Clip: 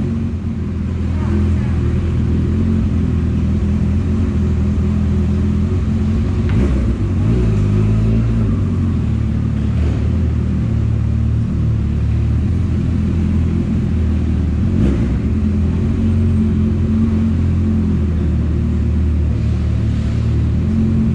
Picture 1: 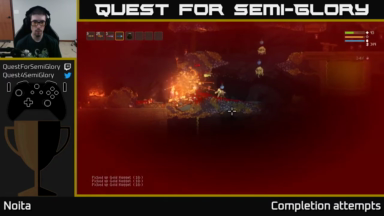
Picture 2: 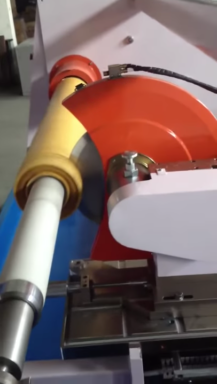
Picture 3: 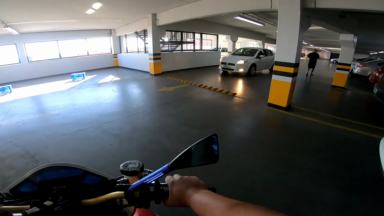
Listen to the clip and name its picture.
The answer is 3